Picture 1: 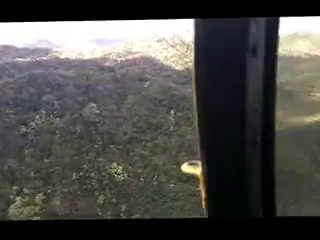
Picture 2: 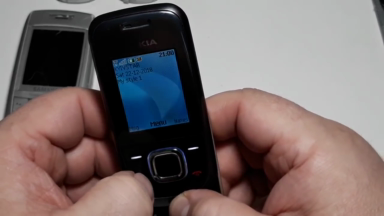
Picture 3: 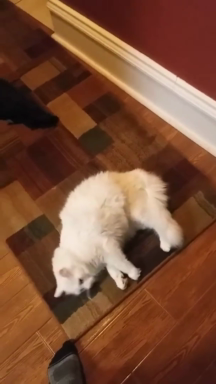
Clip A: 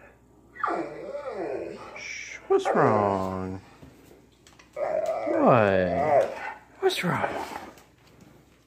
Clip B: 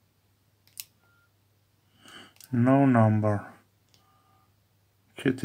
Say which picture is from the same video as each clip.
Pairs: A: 3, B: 2